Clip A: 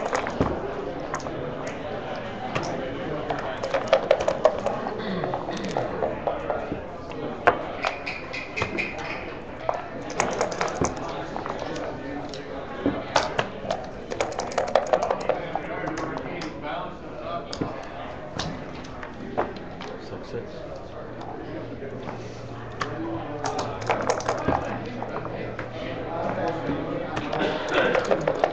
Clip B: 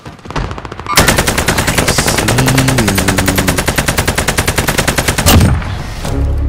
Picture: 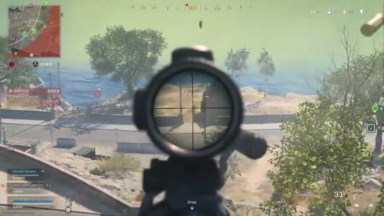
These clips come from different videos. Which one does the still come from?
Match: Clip B